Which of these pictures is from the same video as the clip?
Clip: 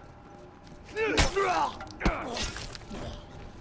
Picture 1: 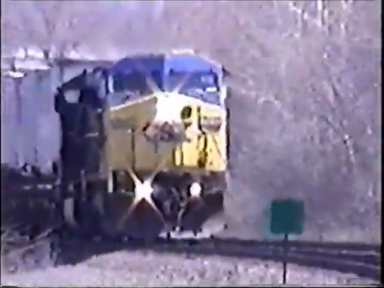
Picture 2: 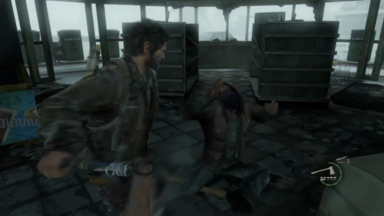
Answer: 2